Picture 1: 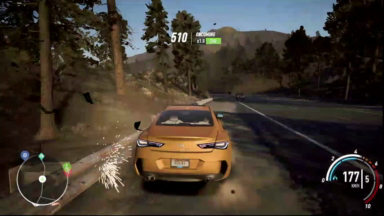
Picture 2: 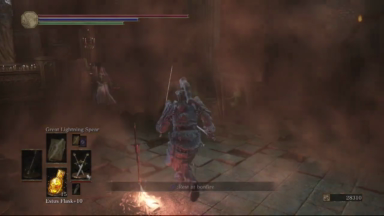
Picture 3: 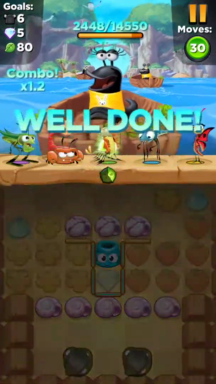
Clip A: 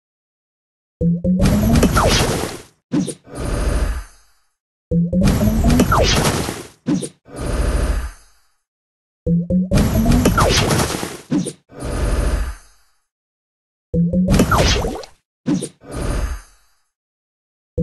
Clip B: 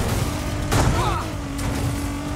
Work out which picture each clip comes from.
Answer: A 3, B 1